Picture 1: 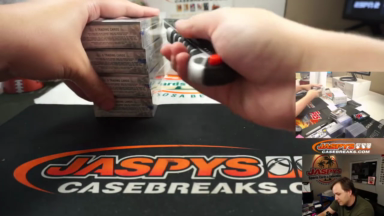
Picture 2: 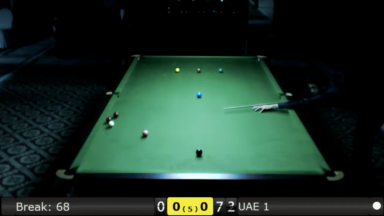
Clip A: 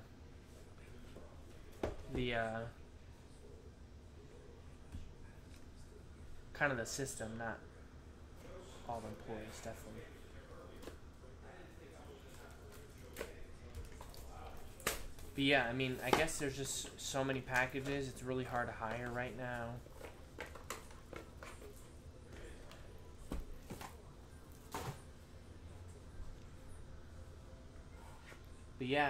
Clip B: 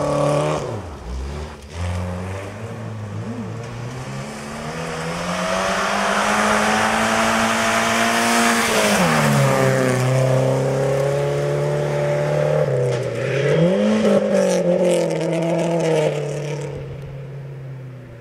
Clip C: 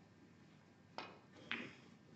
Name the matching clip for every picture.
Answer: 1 A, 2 C